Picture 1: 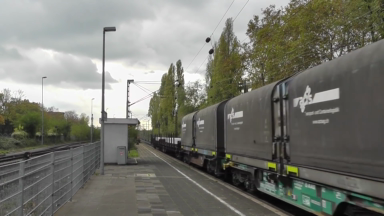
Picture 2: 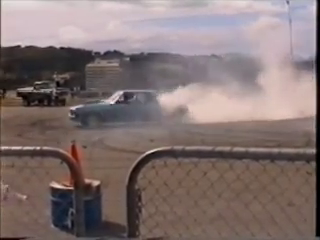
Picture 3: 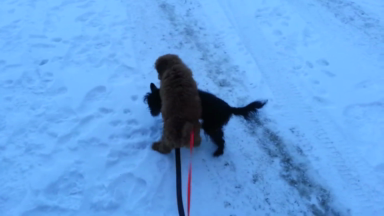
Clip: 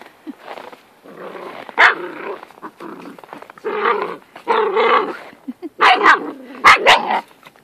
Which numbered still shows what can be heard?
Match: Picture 3